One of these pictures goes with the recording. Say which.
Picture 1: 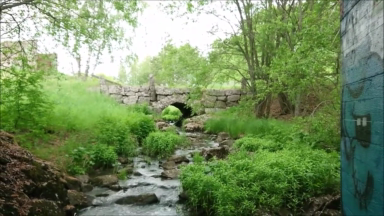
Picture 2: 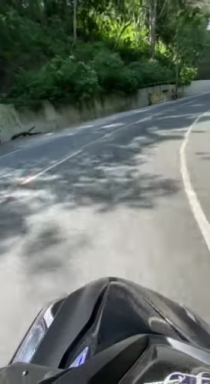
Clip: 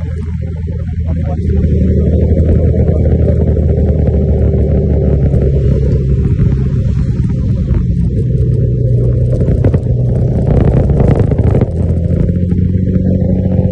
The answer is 2